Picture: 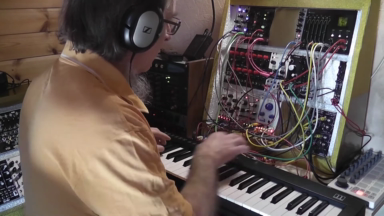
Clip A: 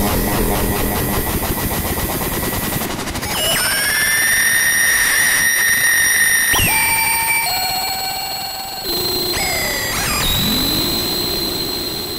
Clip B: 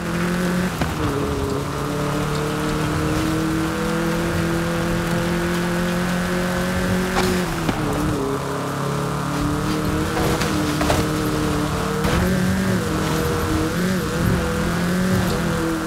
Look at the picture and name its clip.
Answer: A